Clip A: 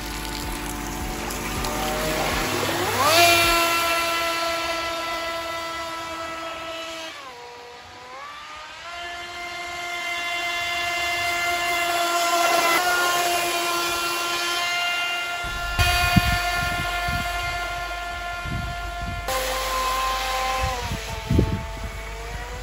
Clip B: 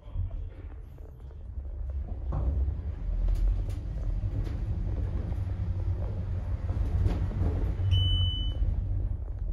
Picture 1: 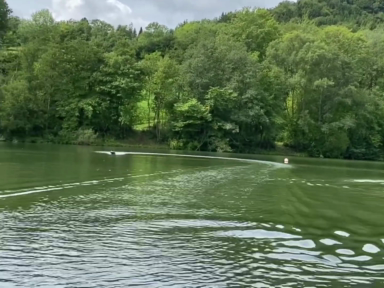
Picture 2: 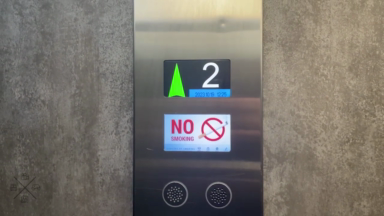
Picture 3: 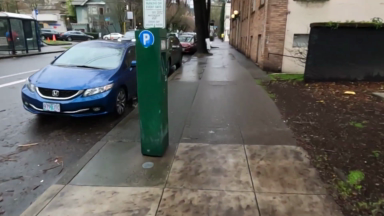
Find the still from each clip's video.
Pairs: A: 1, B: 2